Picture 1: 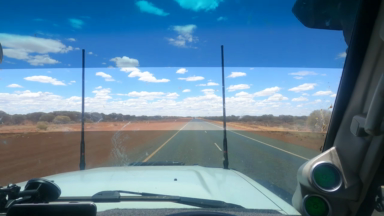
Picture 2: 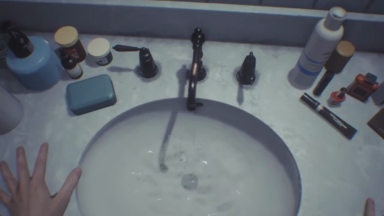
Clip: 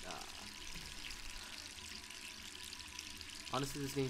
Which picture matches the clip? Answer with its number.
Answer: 2